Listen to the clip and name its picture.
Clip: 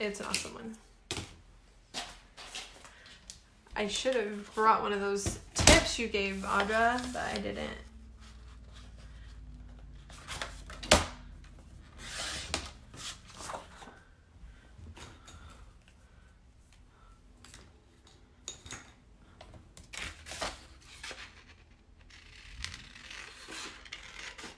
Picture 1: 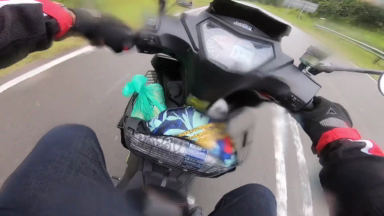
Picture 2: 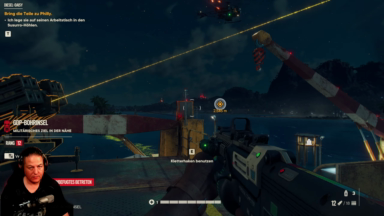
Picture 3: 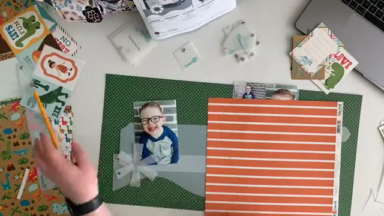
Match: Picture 3